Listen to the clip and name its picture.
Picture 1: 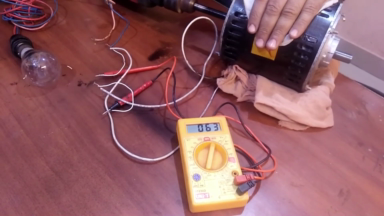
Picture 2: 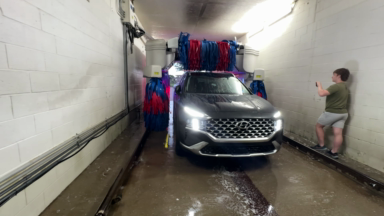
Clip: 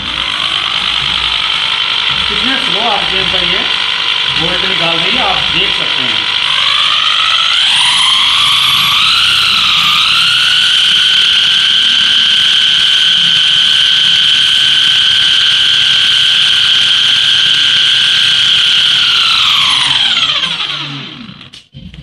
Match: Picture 1